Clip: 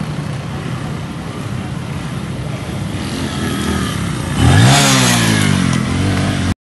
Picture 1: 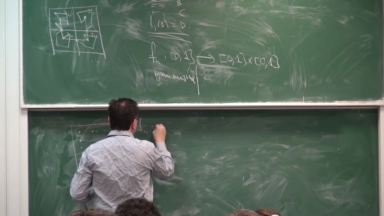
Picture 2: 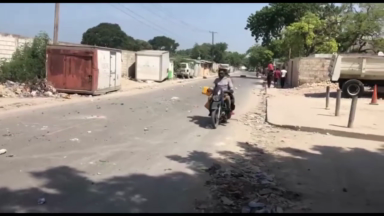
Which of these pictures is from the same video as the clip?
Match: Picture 2